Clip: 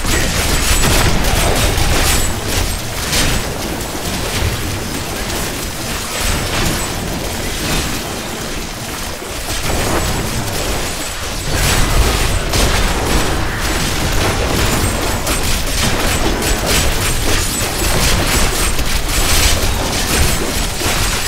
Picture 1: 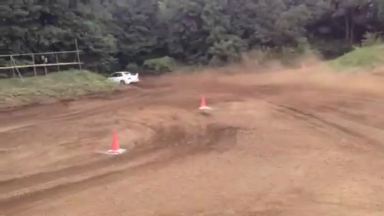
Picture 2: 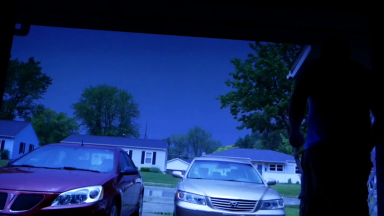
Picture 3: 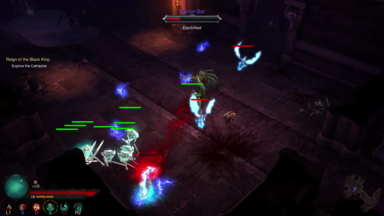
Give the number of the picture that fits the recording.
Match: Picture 3